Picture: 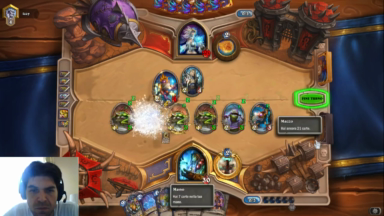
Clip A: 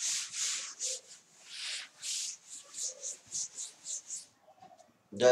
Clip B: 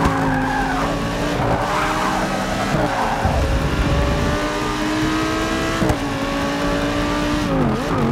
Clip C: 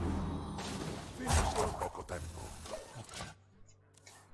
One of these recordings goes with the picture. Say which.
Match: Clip C